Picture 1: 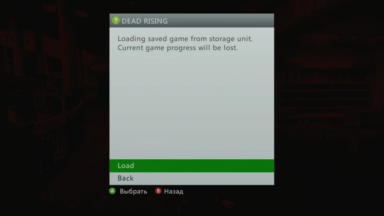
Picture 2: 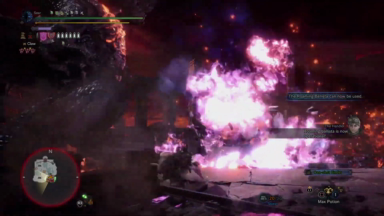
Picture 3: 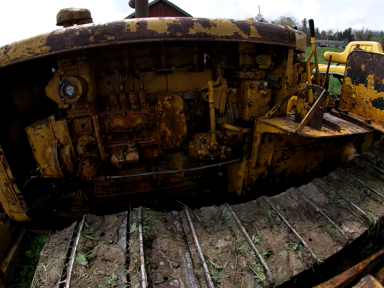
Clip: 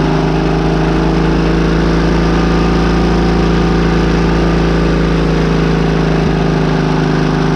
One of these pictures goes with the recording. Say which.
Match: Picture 3